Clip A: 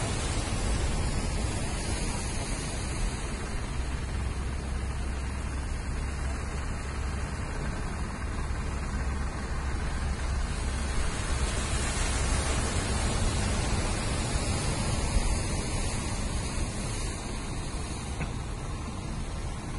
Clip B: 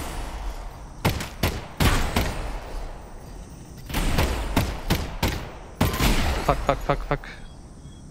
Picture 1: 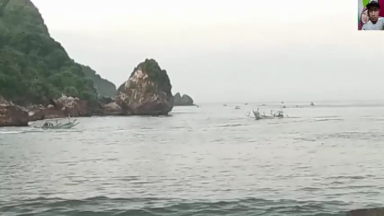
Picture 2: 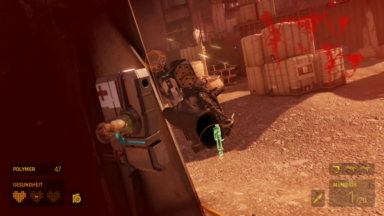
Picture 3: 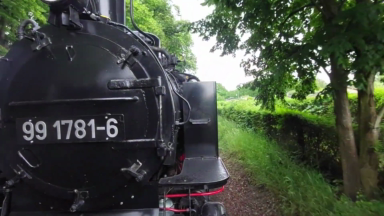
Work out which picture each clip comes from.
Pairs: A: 1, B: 2